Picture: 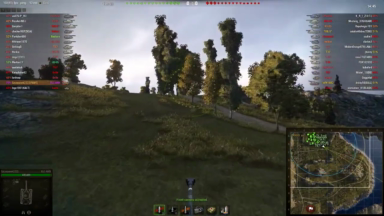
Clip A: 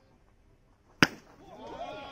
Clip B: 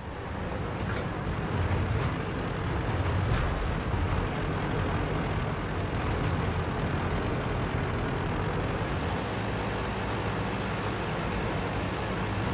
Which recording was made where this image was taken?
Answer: B